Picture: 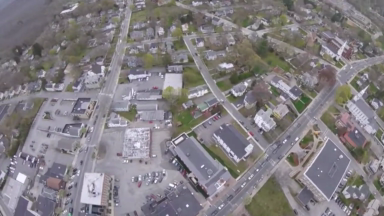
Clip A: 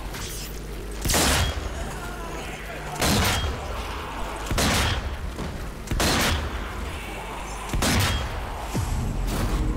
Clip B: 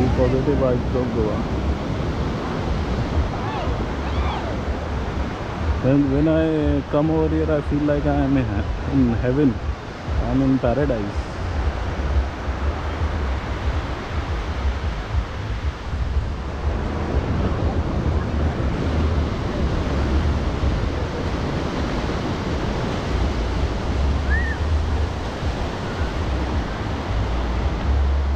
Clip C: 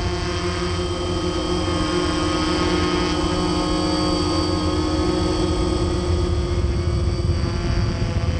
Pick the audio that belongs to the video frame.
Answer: C